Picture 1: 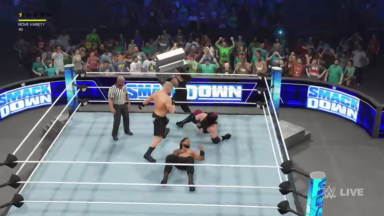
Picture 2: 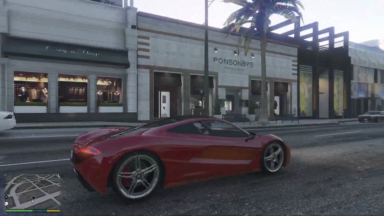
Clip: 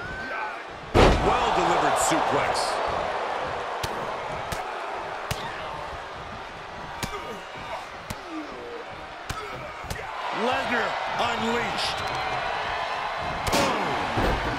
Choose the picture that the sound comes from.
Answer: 1